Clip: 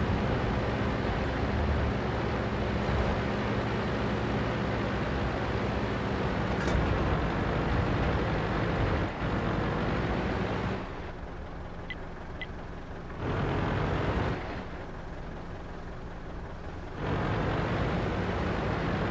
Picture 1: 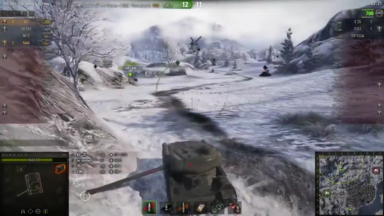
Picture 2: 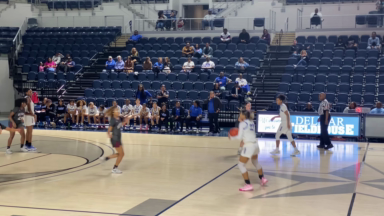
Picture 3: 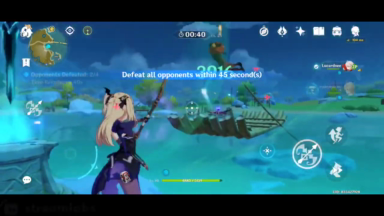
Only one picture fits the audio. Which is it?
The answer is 1